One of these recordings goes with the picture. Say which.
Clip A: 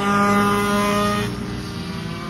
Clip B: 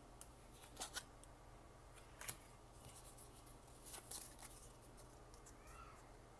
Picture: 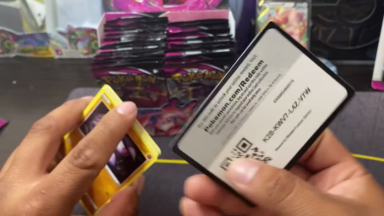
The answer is B